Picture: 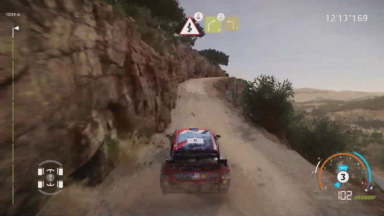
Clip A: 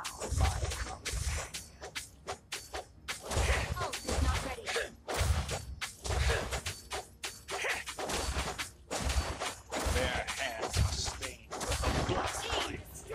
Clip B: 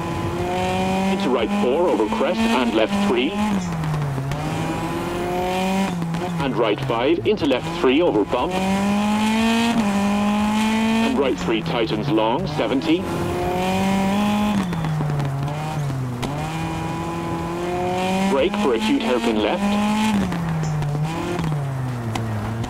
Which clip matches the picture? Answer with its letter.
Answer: B